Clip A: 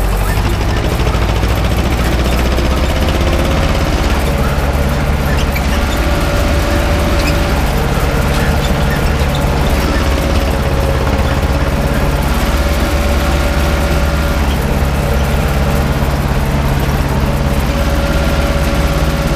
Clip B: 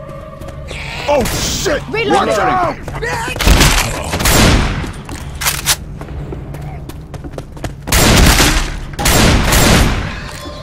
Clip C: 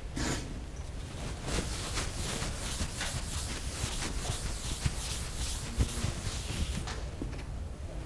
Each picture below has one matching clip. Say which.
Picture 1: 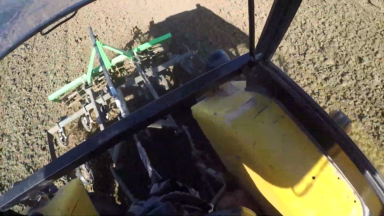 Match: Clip A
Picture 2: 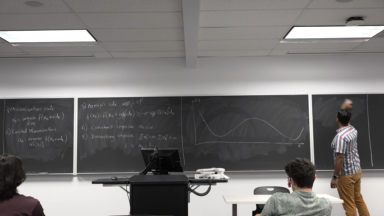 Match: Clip C